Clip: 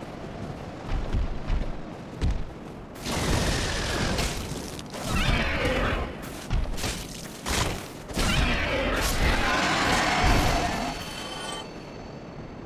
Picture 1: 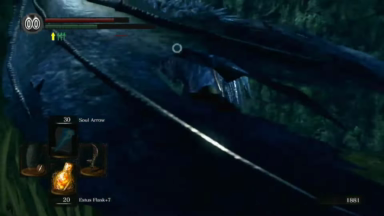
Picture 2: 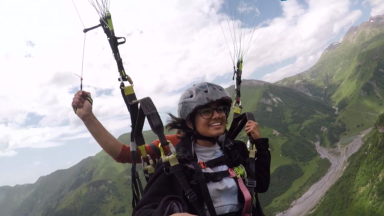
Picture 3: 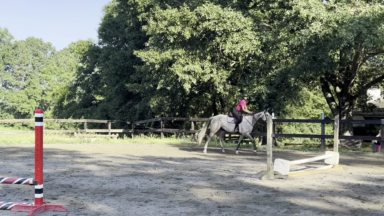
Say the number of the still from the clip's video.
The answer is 1